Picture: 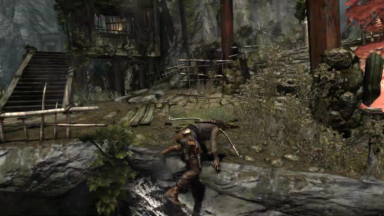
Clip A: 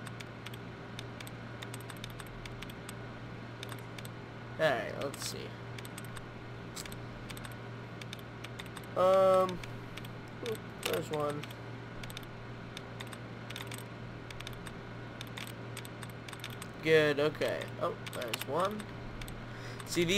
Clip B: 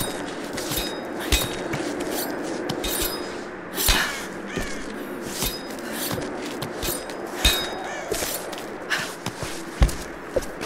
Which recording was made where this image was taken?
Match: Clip B